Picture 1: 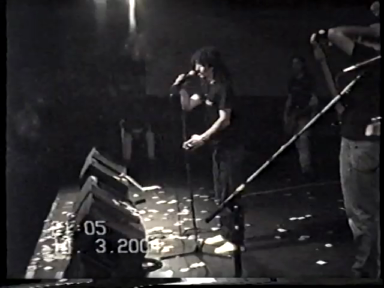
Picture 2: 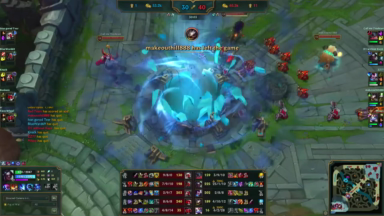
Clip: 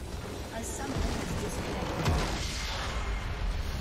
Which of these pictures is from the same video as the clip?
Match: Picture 2